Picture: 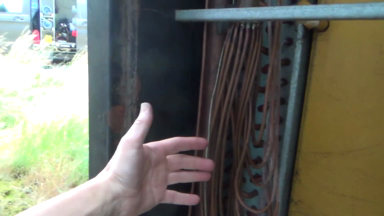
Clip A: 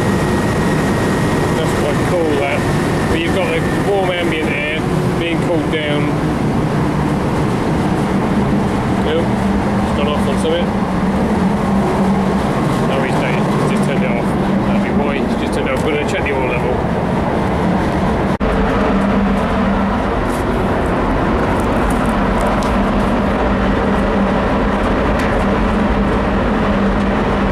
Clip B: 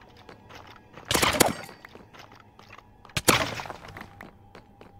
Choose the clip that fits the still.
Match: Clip A